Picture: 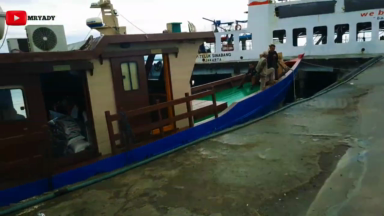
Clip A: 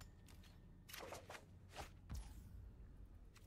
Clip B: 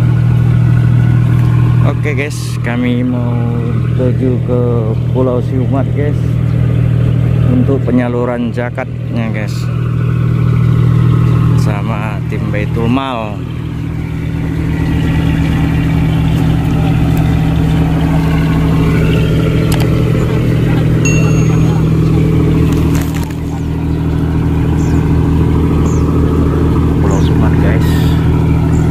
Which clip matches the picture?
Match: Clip B